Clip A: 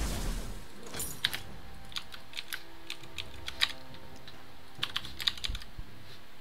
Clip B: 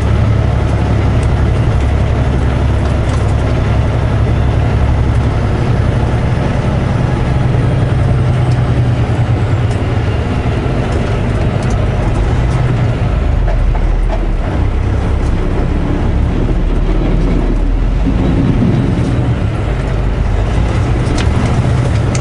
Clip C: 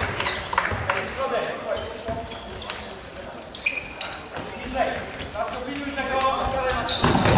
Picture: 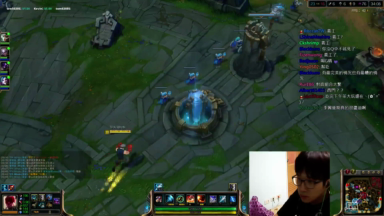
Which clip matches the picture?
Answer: A